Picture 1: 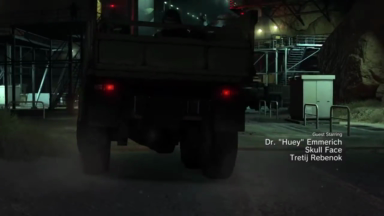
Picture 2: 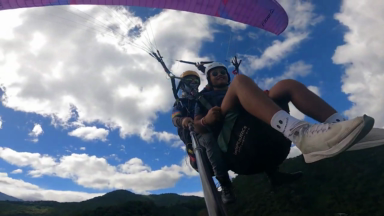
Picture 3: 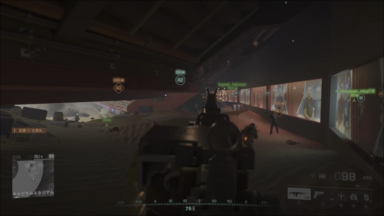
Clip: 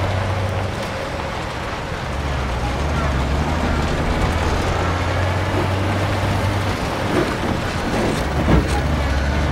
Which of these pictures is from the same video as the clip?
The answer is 1